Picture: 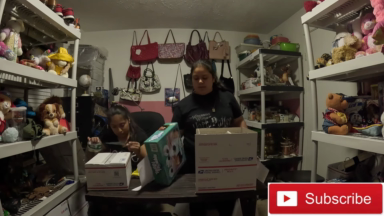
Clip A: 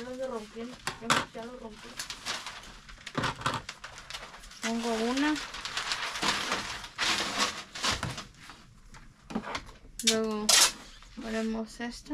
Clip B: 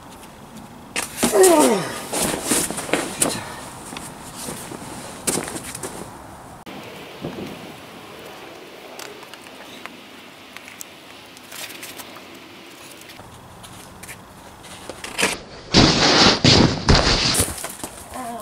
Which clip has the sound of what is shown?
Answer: A